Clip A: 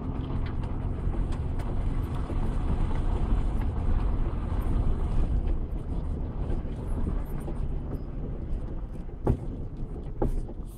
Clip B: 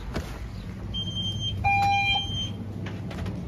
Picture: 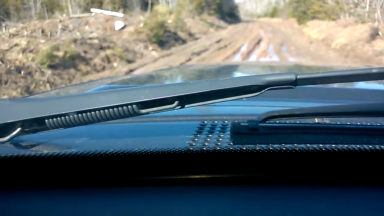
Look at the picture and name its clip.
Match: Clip A